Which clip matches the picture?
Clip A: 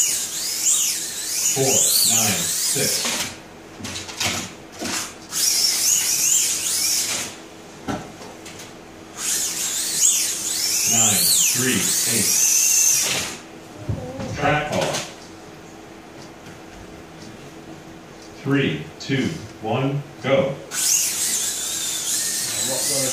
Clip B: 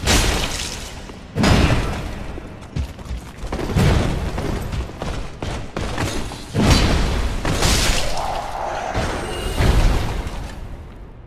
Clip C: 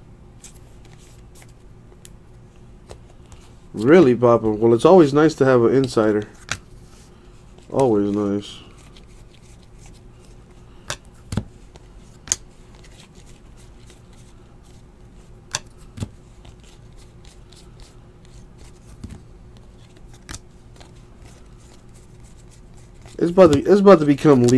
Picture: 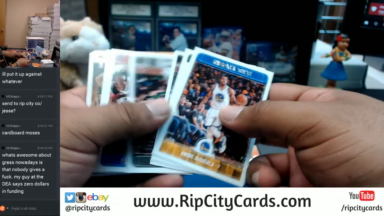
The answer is C